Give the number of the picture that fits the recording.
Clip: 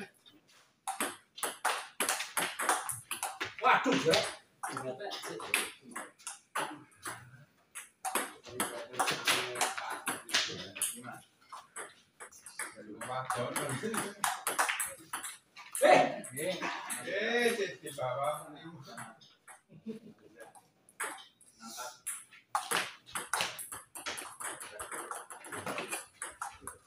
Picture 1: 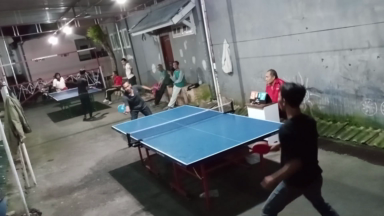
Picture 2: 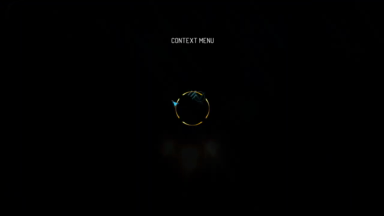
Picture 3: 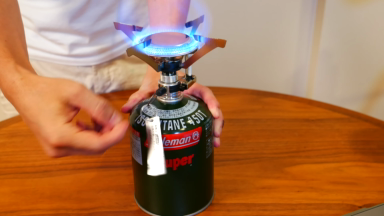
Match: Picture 1